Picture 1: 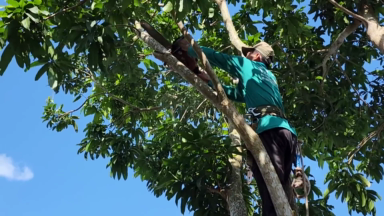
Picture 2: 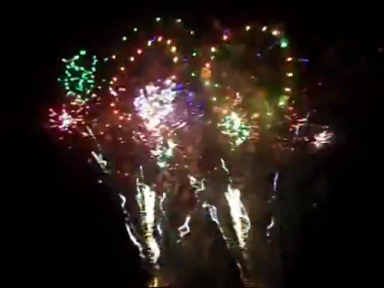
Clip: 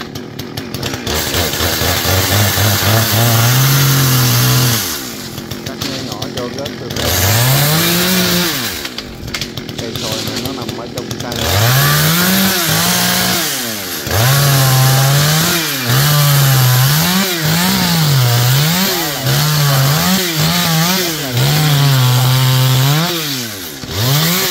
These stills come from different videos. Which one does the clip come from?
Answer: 1